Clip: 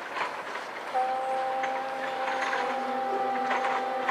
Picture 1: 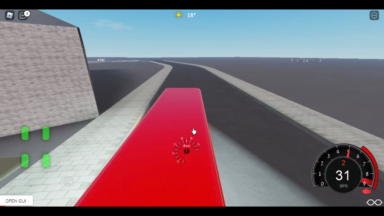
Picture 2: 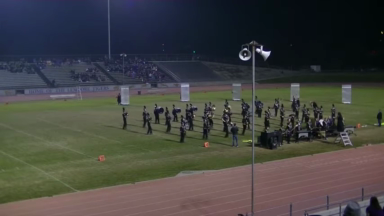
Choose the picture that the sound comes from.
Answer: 2